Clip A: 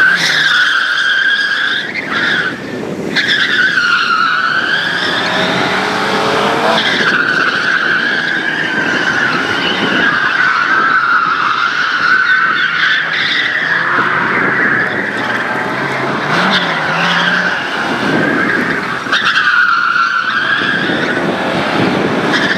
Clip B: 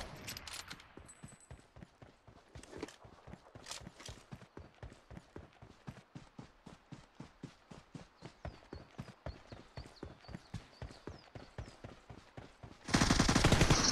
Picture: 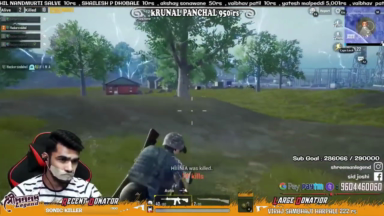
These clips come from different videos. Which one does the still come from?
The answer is B